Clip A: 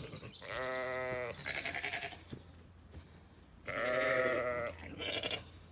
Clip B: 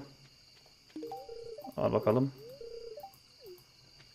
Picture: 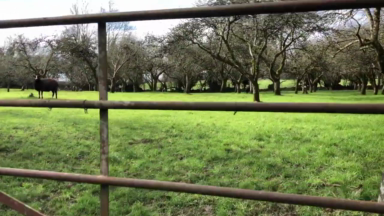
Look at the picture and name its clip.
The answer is A